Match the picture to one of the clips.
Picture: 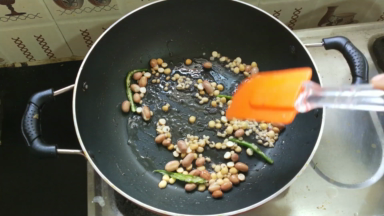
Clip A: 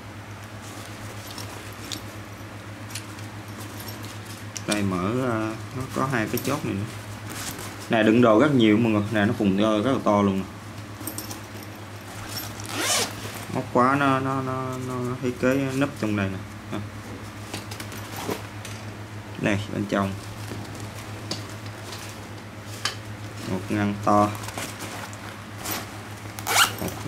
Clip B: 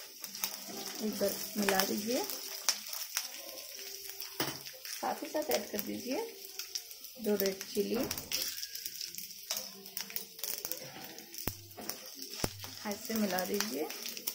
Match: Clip B